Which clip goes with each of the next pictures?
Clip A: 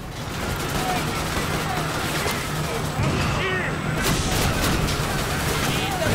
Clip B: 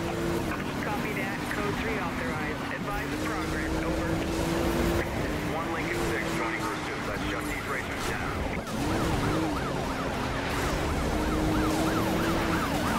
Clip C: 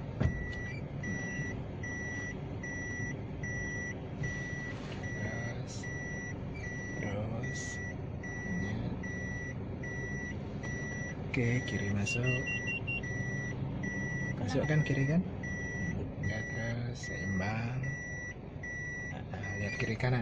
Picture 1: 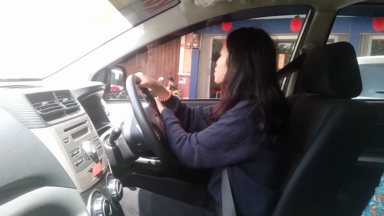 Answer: C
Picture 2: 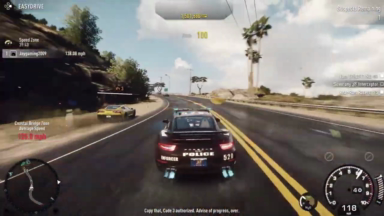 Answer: B